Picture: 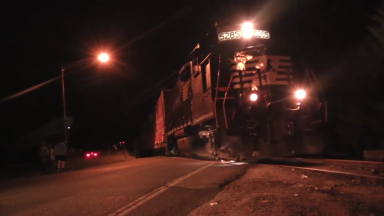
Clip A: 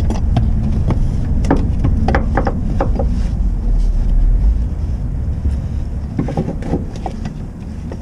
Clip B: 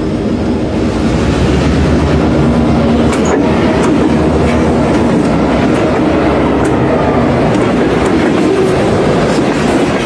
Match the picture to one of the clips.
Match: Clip B